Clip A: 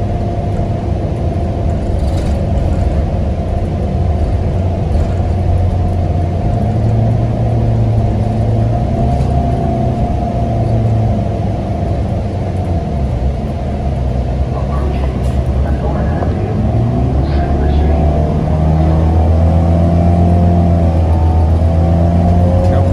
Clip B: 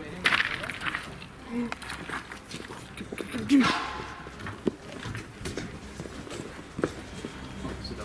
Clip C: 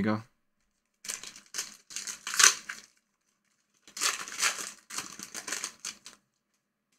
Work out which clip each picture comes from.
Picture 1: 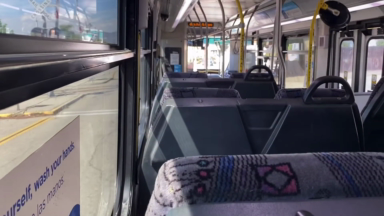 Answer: A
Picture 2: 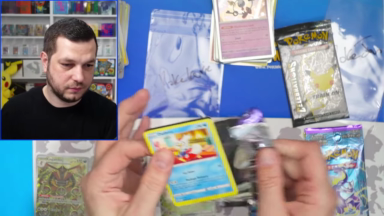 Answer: C